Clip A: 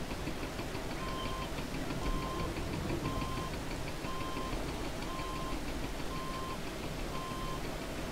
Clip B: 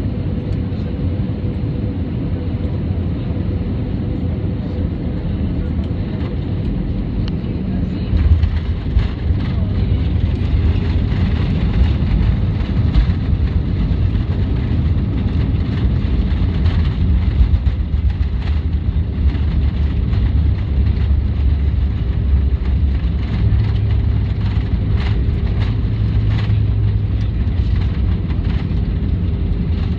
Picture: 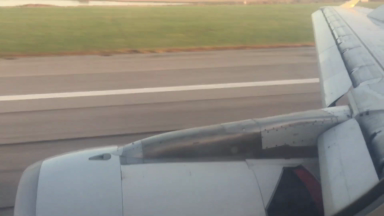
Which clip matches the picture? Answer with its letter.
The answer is B